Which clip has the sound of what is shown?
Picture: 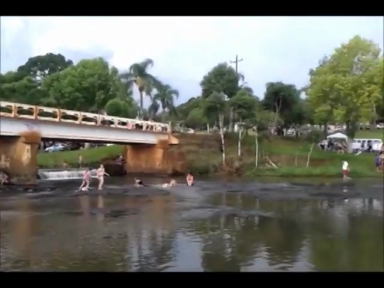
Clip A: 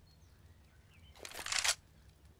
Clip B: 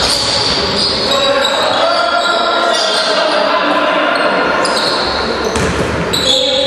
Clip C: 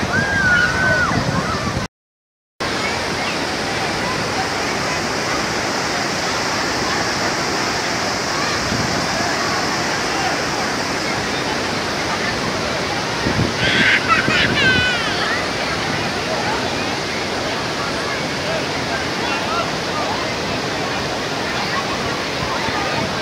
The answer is C